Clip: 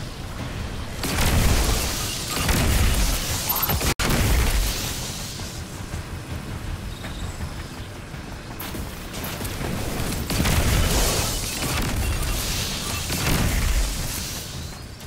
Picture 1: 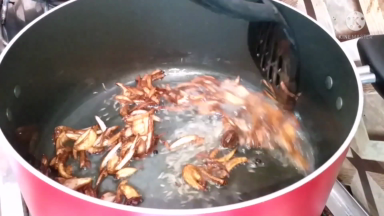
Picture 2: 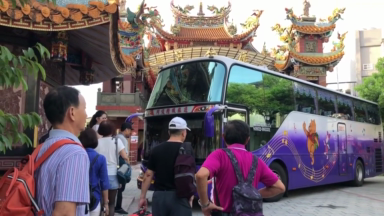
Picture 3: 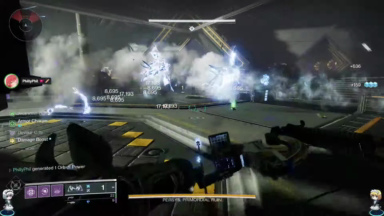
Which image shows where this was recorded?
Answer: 3